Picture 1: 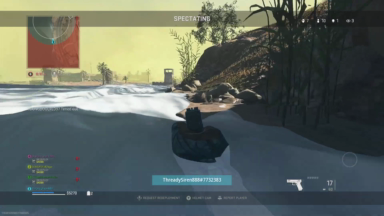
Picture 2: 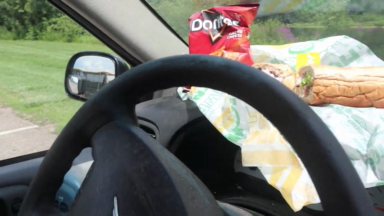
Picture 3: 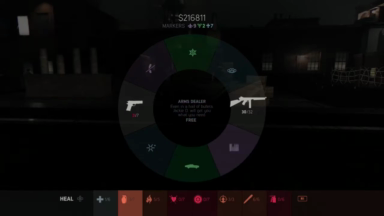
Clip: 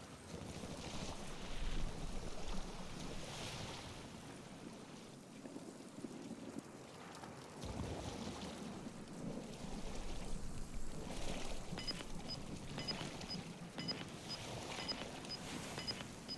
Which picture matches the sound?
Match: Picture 1